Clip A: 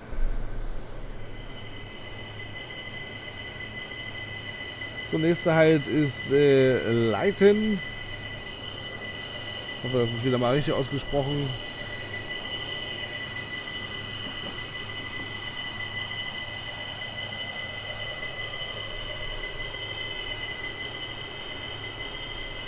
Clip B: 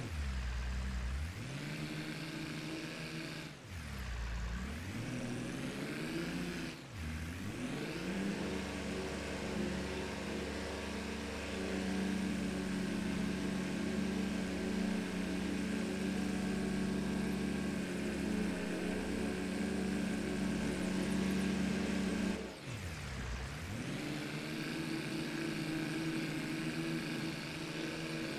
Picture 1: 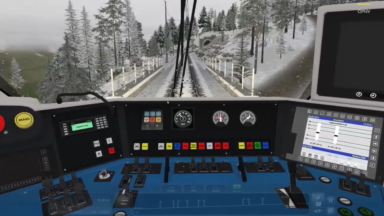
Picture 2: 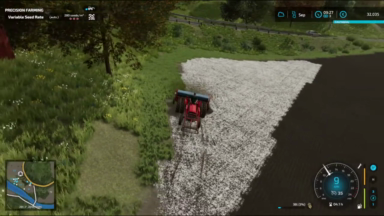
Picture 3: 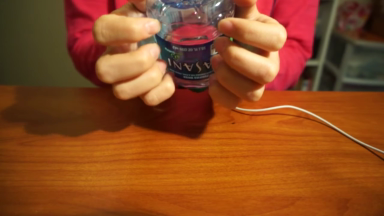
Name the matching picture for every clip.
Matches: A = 1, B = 2